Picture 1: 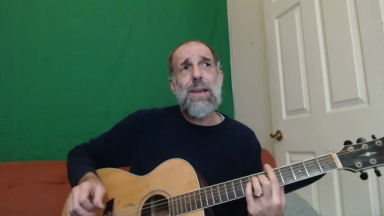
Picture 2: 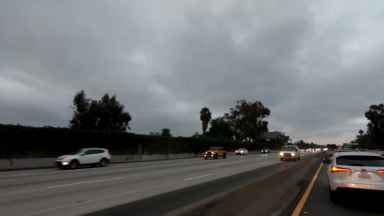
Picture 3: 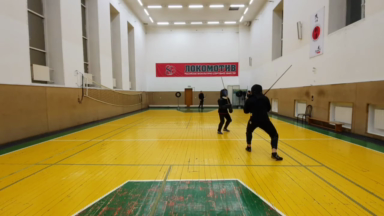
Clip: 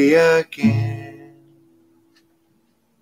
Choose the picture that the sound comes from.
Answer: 1